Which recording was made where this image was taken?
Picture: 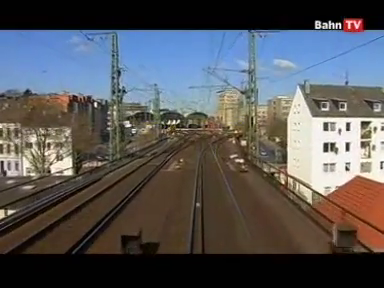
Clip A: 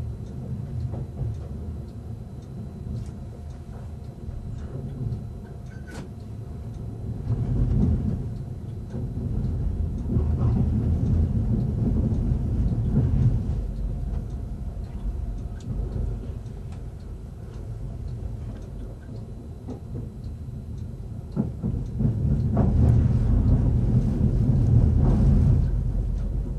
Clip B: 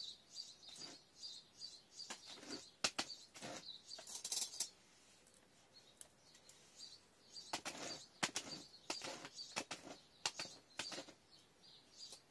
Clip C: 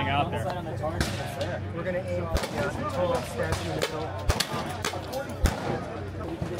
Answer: A